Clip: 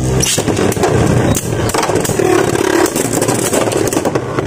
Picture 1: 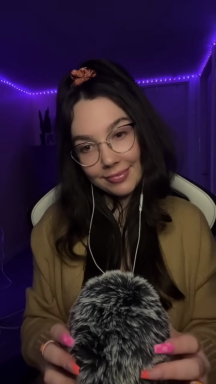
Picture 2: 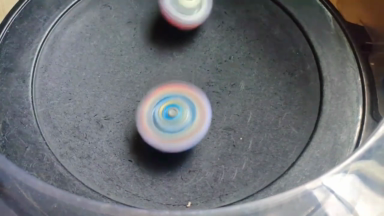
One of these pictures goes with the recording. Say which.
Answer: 2